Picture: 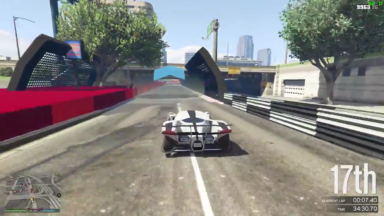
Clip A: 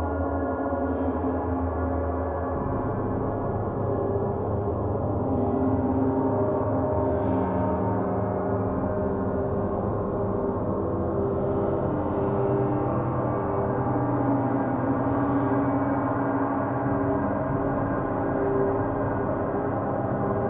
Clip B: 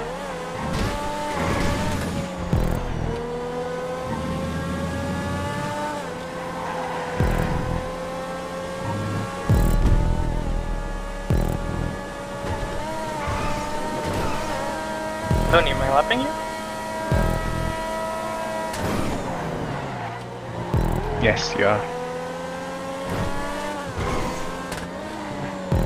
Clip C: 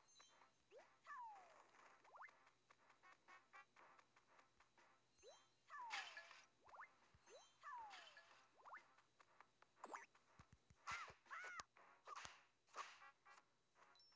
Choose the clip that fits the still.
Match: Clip B